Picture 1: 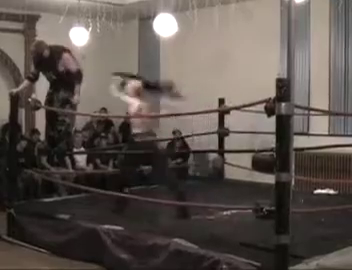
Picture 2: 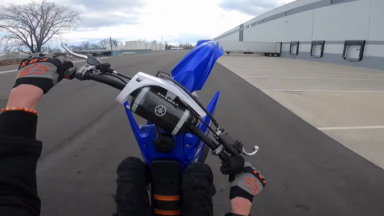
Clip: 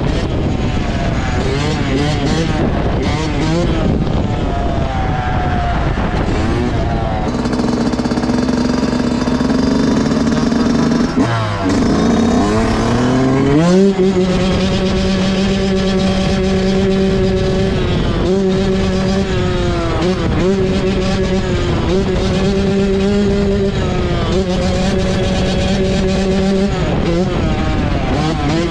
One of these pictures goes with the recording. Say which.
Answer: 2